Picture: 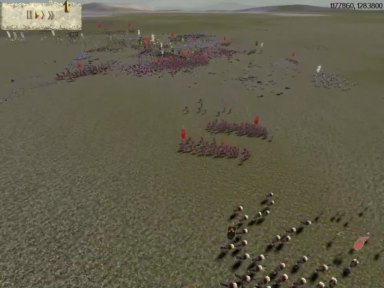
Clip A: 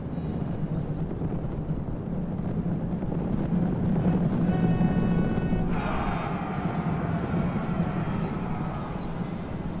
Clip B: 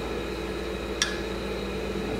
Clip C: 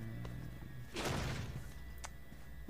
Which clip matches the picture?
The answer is A